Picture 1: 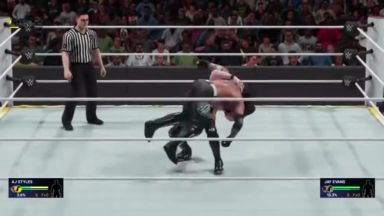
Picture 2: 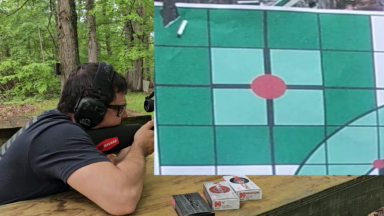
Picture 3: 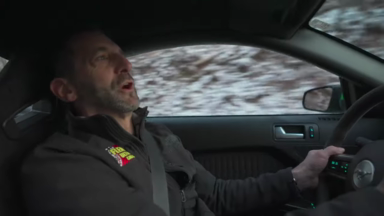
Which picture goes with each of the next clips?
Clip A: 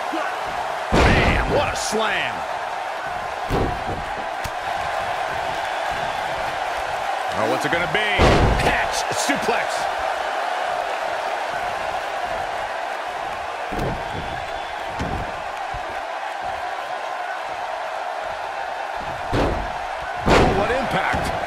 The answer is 1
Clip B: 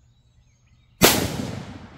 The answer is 2